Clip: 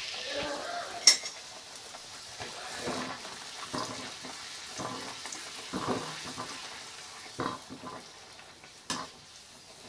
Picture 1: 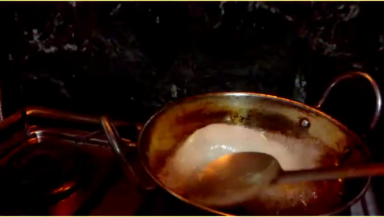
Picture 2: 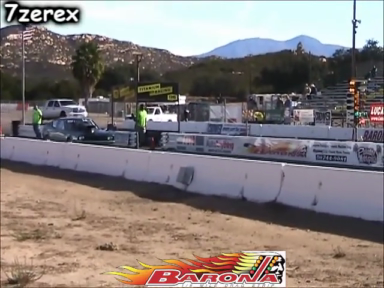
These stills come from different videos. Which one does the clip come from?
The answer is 1